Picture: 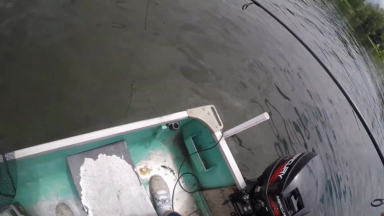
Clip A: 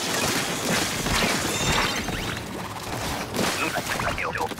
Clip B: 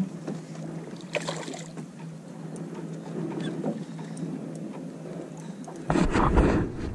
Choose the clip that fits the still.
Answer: B